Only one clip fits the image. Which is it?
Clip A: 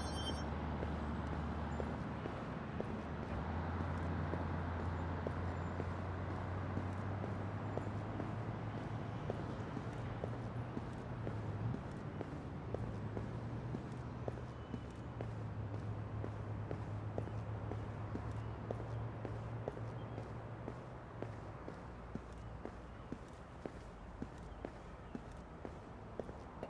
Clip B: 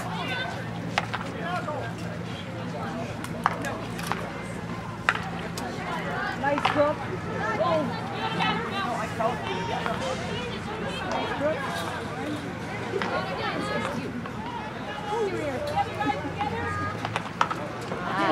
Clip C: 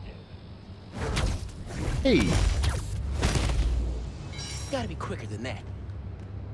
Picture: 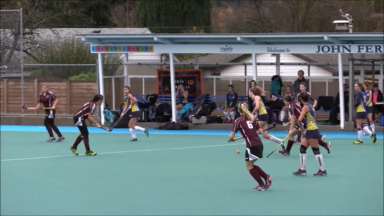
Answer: B